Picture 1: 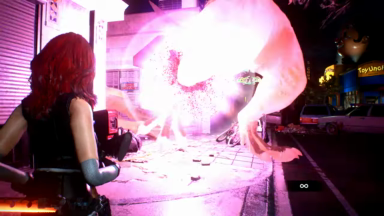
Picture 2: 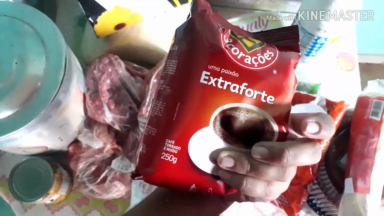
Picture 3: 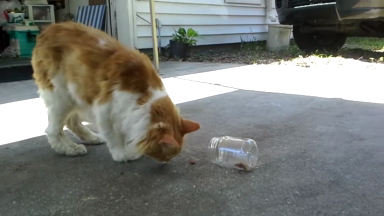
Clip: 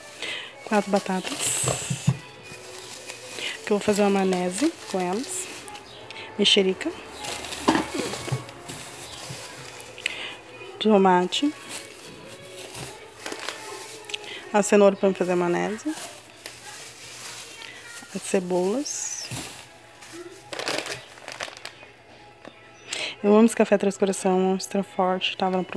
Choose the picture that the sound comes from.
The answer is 2